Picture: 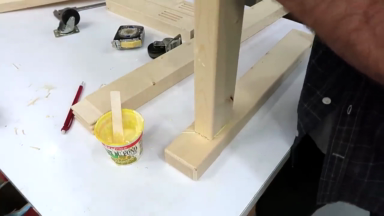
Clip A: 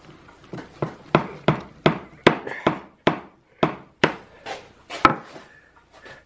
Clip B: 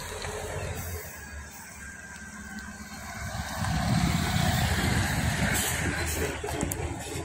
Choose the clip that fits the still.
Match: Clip A